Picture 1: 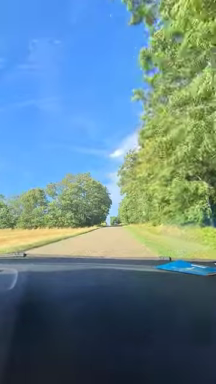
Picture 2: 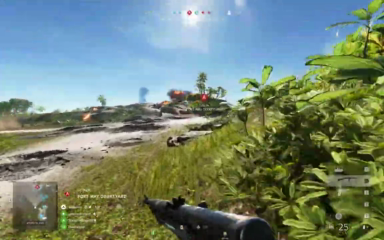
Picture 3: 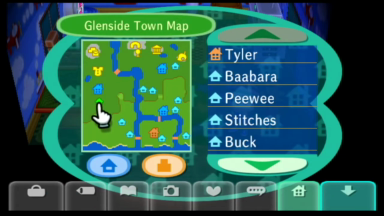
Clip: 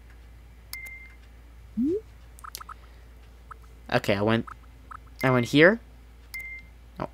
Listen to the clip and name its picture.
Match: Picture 3